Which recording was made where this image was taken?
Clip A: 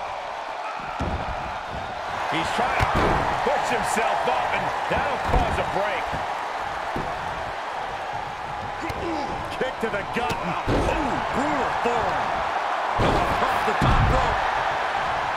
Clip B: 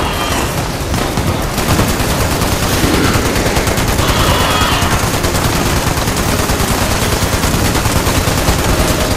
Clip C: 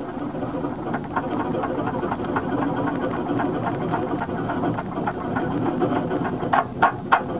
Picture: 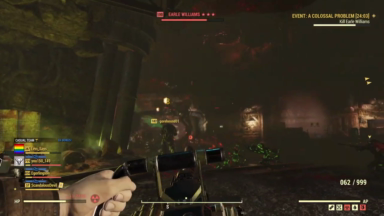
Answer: B